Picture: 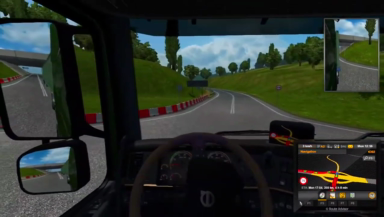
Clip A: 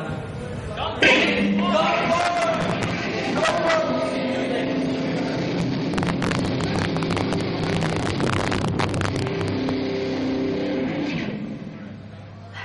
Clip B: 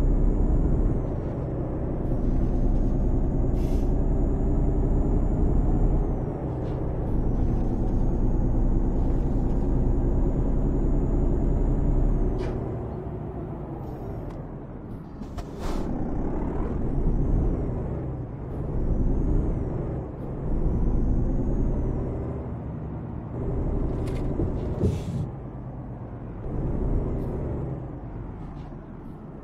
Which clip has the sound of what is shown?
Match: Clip B